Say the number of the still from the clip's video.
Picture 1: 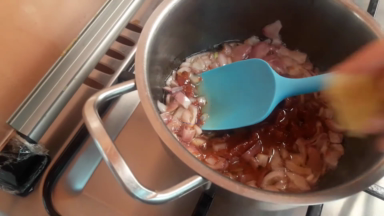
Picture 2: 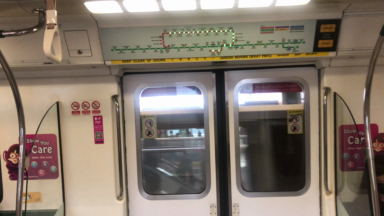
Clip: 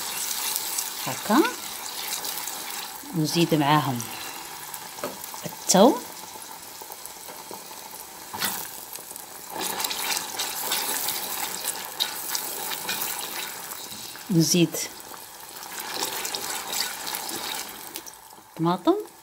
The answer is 1